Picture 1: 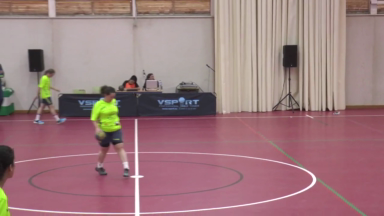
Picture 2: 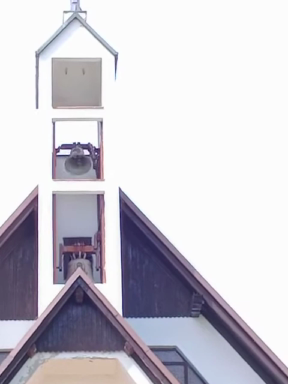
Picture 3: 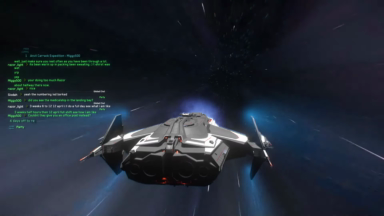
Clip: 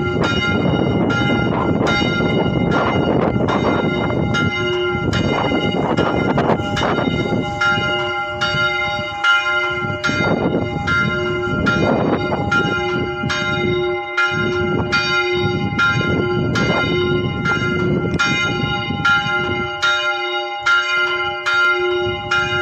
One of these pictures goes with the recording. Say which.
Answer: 2